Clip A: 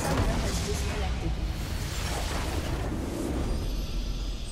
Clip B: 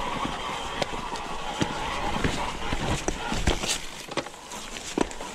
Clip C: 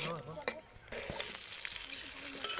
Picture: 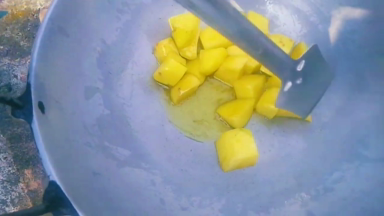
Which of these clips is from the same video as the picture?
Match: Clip C